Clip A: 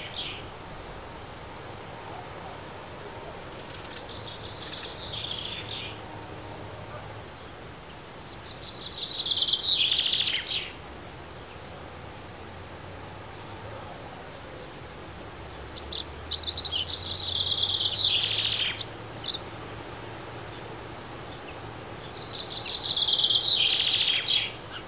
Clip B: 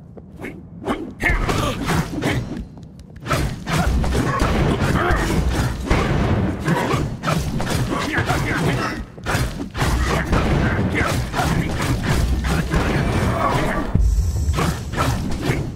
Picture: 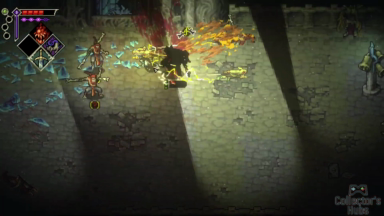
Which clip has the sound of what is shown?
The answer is B